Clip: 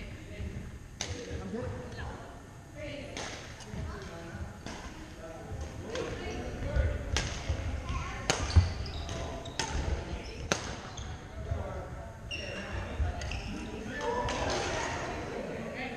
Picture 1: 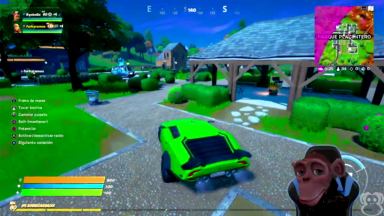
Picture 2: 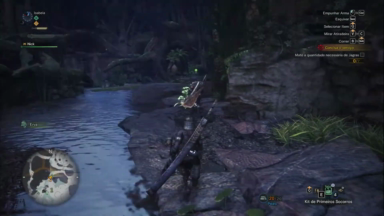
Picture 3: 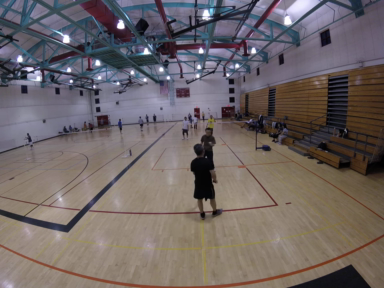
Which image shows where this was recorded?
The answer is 3